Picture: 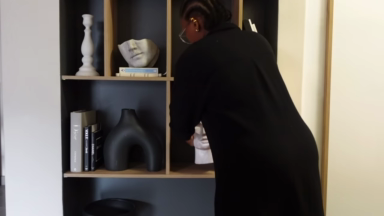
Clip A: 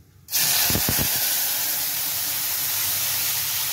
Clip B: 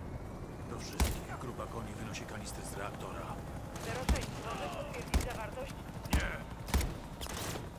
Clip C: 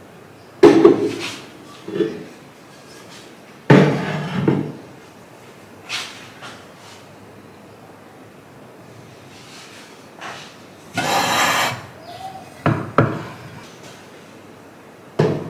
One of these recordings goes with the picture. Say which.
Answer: C